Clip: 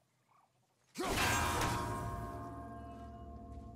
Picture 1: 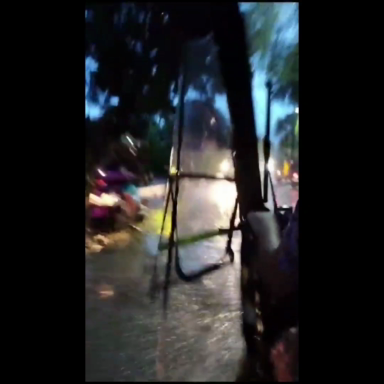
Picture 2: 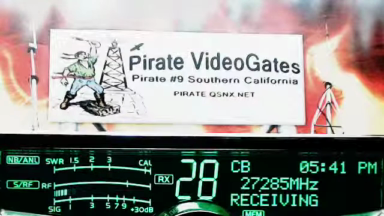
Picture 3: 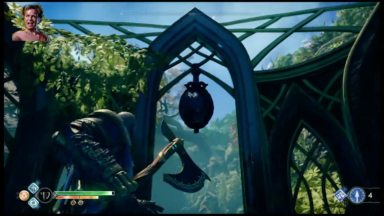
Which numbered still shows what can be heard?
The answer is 3